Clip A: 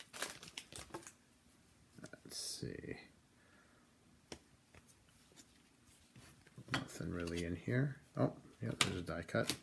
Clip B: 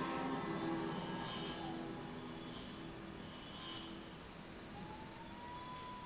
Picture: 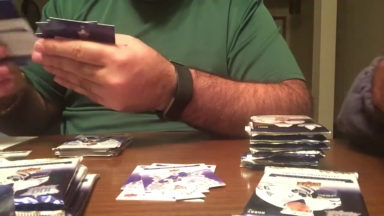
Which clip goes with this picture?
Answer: A